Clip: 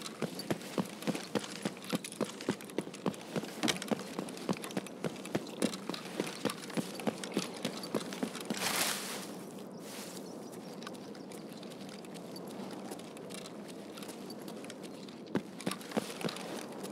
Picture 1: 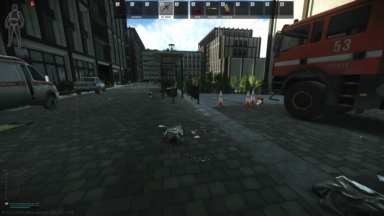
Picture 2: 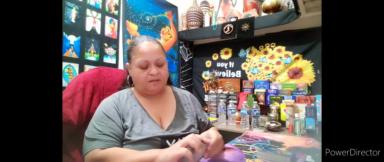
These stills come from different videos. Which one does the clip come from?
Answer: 1